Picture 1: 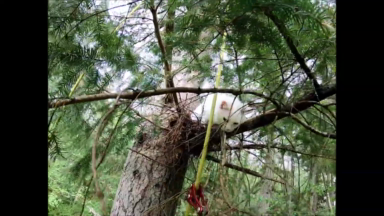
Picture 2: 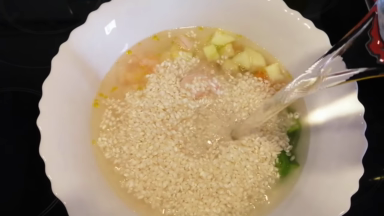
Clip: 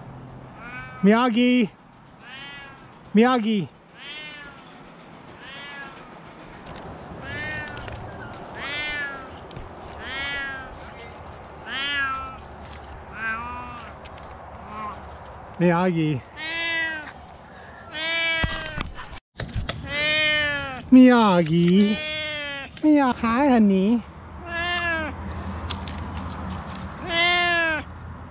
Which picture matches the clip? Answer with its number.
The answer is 1